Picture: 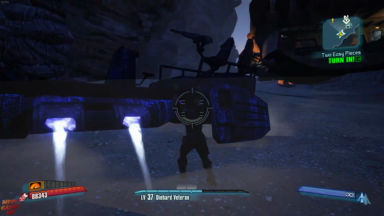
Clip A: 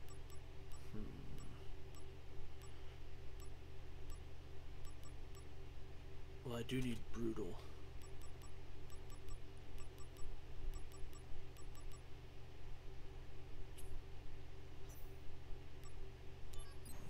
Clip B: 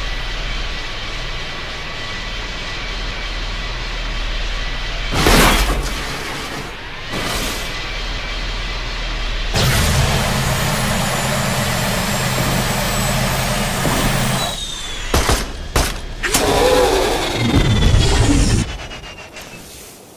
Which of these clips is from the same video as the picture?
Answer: B